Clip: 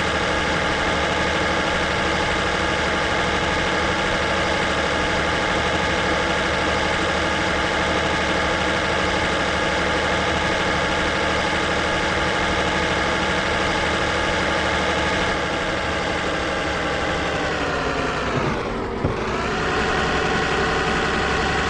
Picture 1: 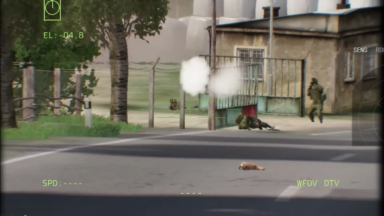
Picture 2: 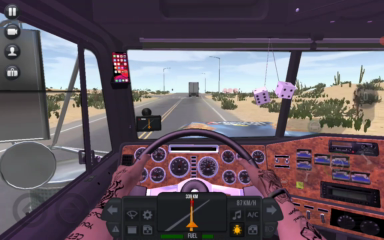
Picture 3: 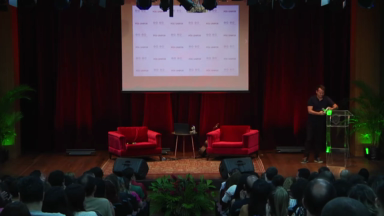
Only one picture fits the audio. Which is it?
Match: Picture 2